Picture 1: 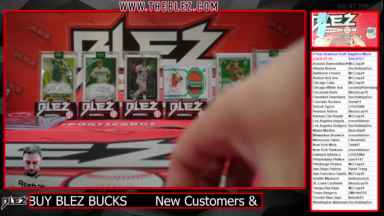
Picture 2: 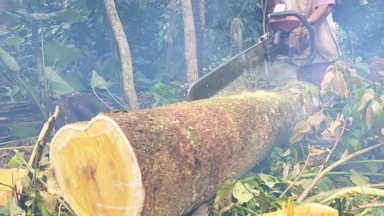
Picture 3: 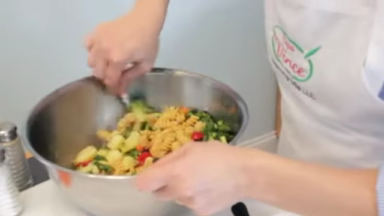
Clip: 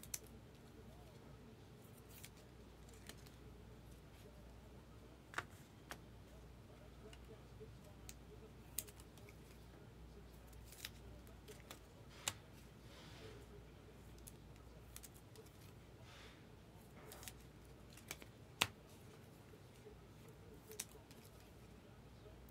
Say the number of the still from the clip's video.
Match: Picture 1